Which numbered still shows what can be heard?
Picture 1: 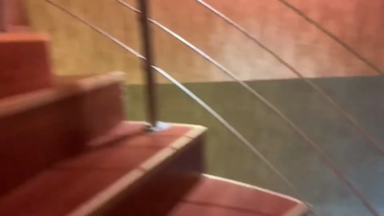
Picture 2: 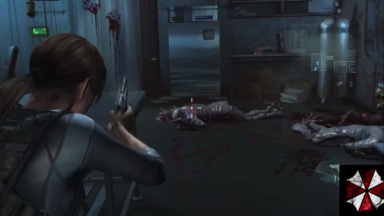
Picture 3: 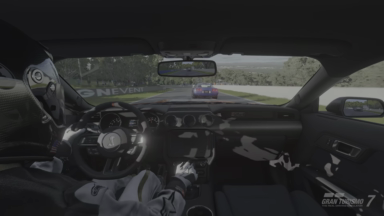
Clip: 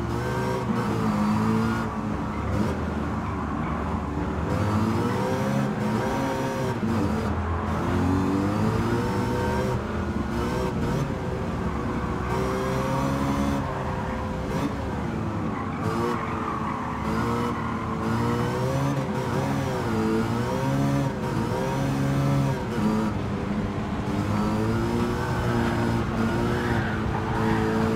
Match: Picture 3